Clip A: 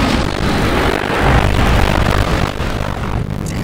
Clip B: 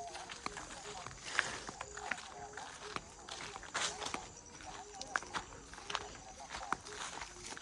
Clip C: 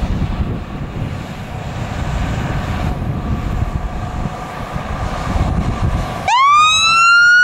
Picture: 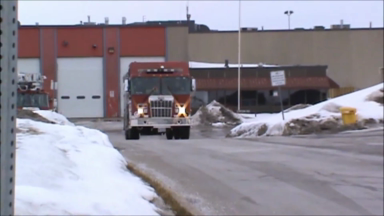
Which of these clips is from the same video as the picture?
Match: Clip C